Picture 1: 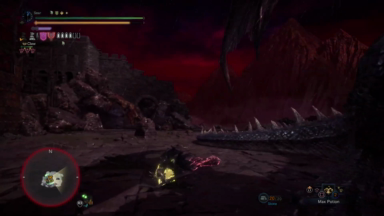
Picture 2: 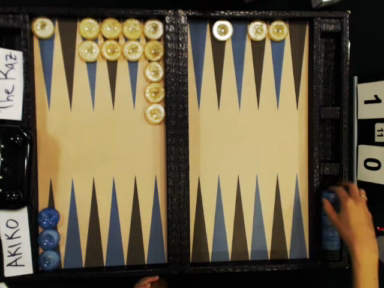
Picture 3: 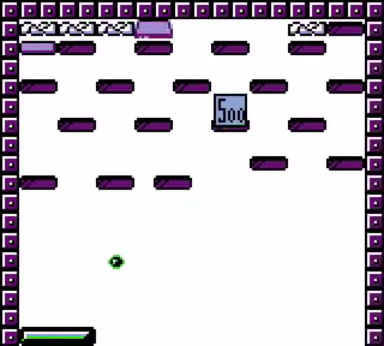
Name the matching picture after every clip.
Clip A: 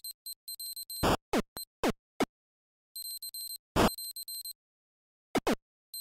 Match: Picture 3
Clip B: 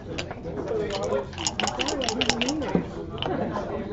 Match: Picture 2